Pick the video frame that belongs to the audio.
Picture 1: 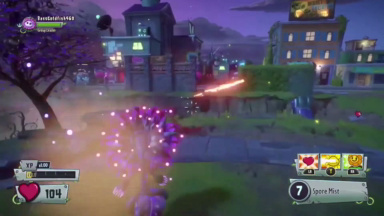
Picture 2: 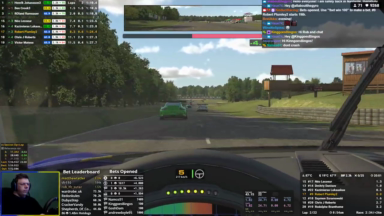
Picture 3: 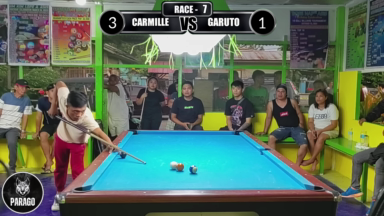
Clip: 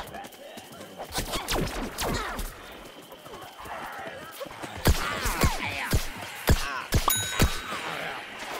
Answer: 1